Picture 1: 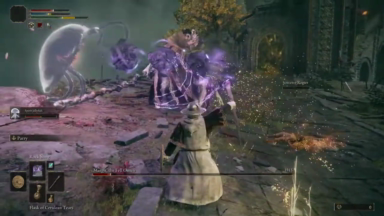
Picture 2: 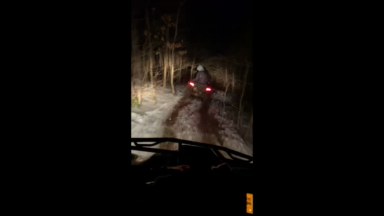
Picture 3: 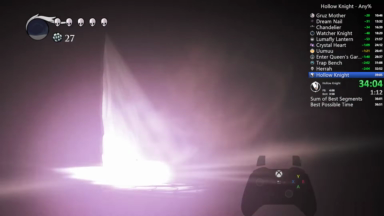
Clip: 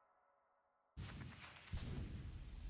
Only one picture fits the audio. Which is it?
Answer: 3